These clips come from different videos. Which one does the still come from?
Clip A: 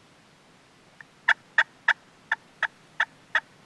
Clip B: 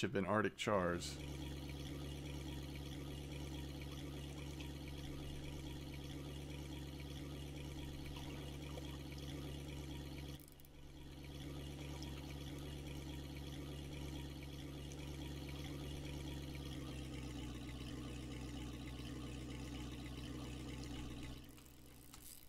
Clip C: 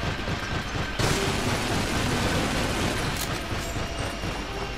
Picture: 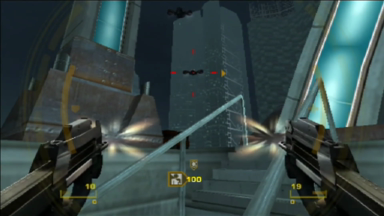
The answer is C